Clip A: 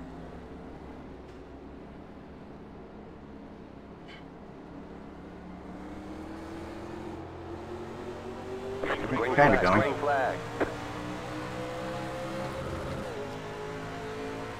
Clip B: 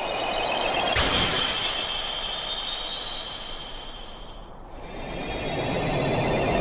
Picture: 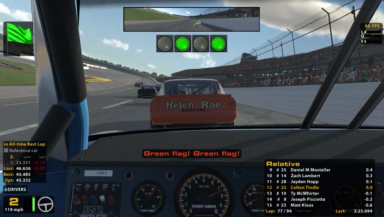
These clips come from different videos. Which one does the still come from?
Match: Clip A